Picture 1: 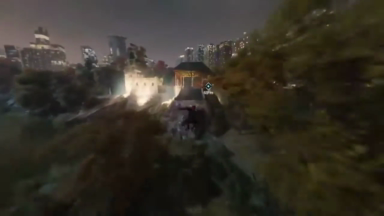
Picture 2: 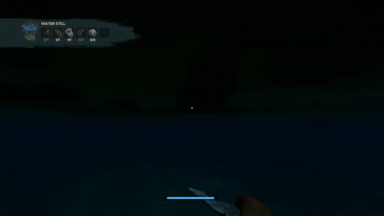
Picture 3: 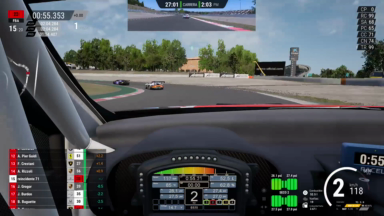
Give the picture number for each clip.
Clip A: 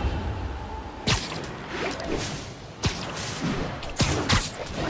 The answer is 1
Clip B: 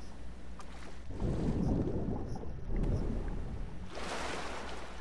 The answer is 2